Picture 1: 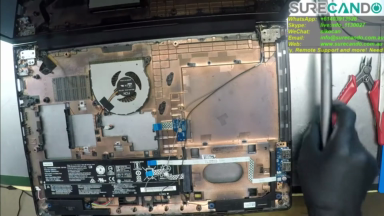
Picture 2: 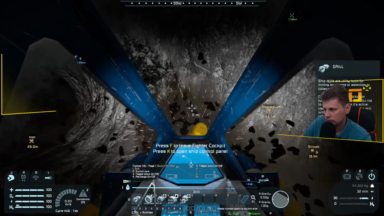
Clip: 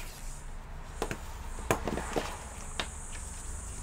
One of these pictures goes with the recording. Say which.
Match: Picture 1